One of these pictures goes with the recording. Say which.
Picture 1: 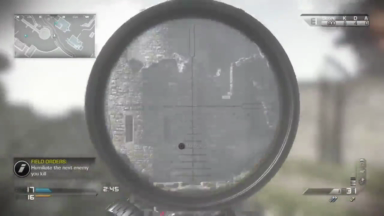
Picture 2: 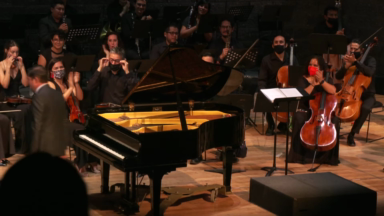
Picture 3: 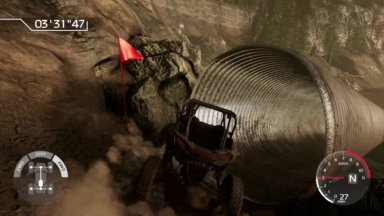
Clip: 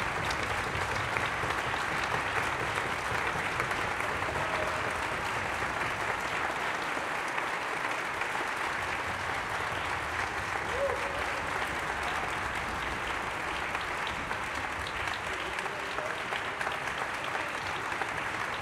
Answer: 2